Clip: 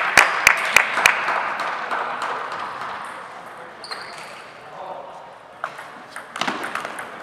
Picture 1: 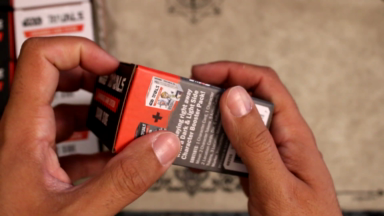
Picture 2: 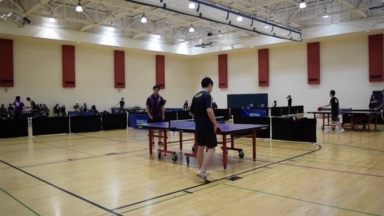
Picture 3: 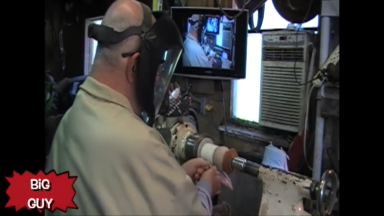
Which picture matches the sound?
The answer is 2